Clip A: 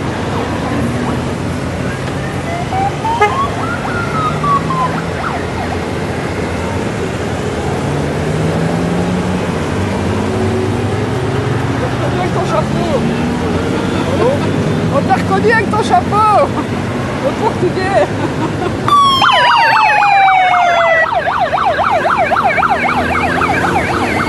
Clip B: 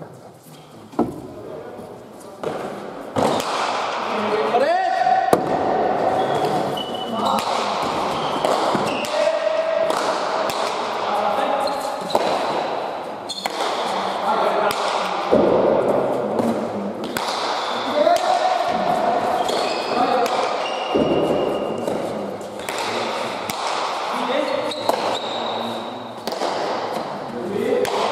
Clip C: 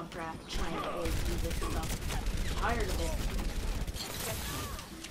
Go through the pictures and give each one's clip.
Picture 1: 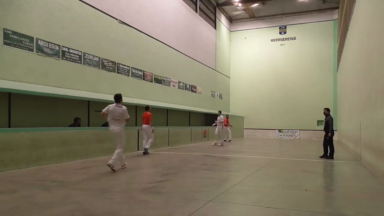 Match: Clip B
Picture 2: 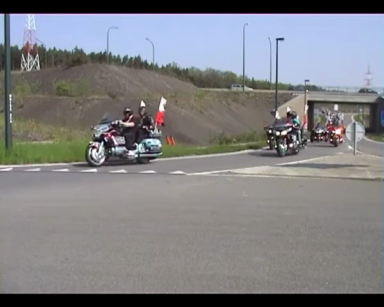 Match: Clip A